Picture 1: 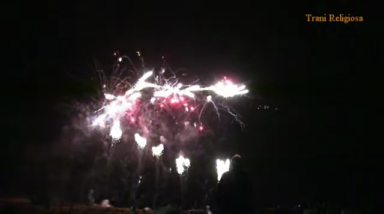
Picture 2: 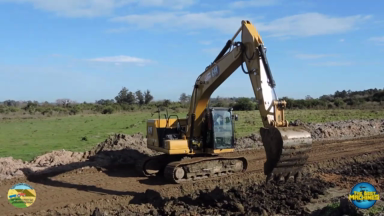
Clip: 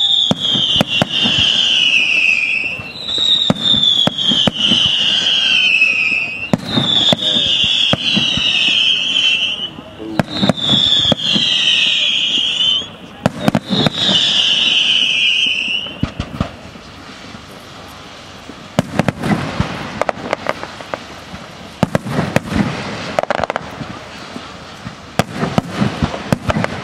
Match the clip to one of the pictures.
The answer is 1